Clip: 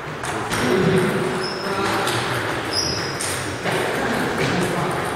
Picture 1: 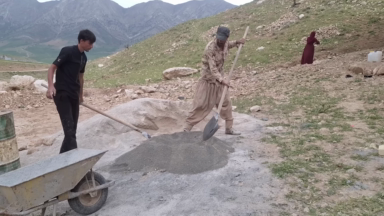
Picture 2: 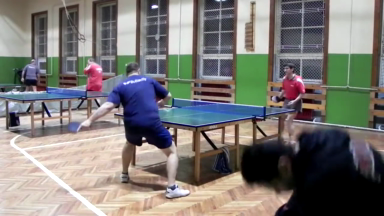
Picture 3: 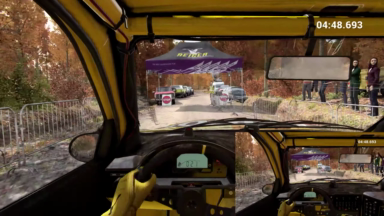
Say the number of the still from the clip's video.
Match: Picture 2